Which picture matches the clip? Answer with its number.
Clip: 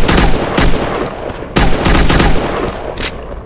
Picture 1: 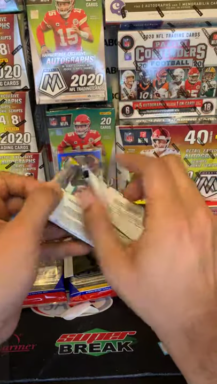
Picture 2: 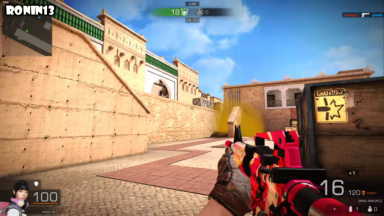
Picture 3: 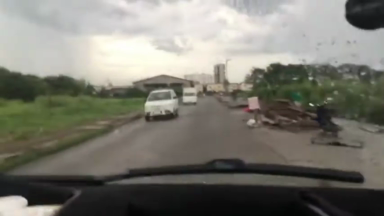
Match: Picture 2